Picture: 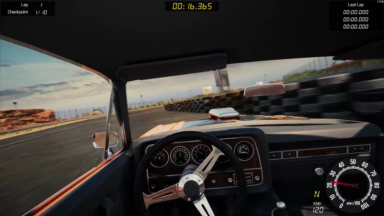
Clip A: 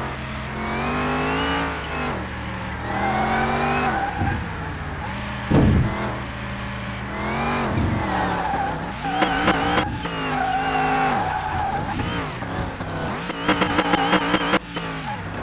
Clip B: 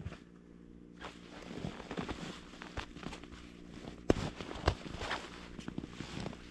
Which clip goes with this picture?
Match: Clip A